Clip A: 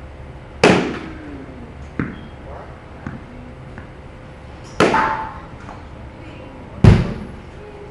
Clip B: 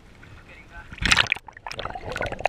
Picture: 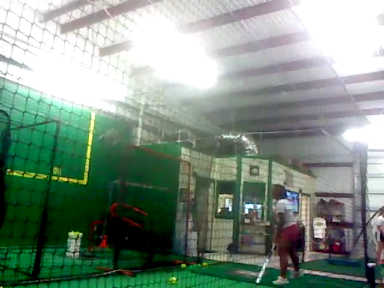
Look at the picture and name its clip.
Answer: A